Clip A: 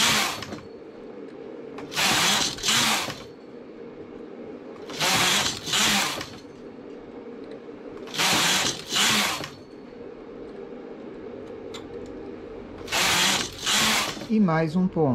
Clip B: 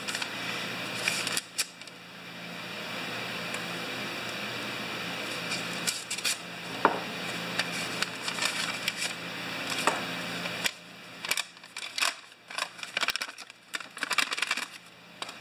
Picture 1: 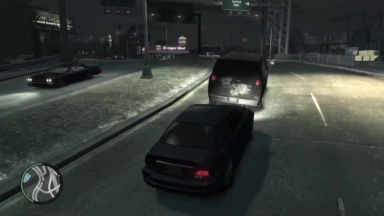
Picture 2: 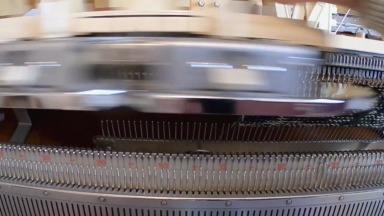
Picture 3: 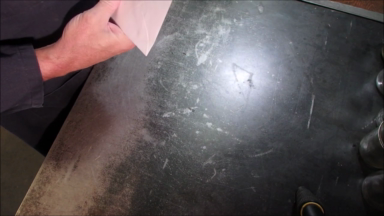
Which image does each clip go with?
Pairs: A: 2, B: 3